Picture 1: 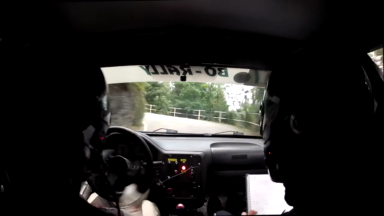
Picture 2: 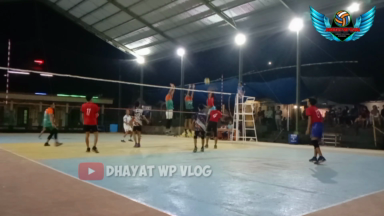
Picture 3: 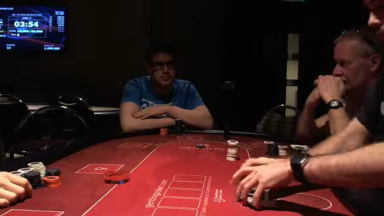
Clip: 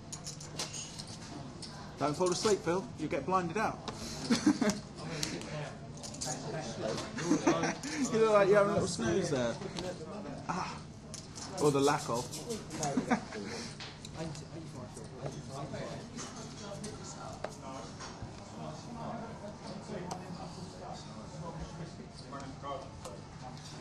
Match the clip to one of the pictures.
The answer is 3